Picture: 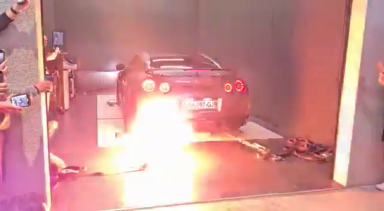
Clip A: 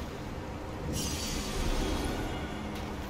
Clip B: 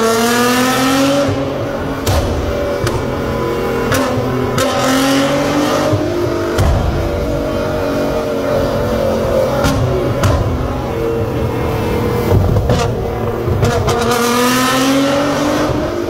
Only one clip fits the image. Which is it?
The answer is B